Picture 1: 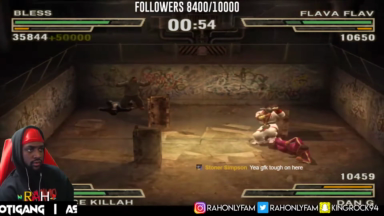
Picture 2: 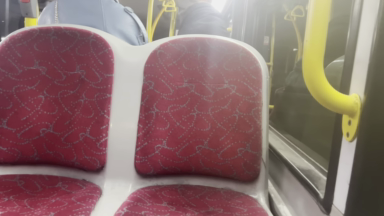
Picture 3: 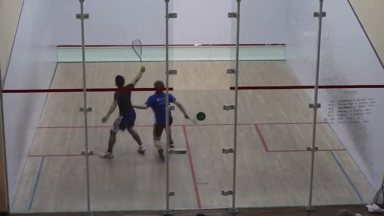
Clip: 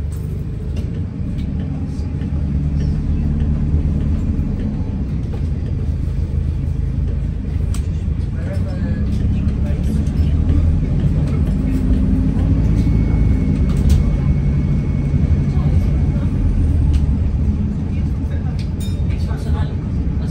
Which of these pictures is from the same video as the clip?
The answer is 2